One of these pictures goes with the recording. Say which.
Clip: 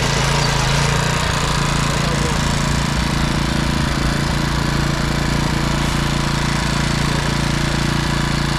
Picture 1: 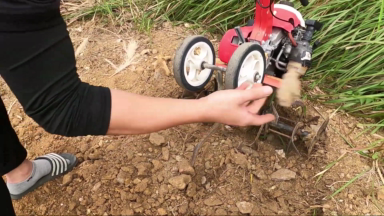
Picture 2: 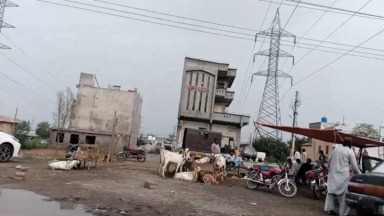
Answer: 1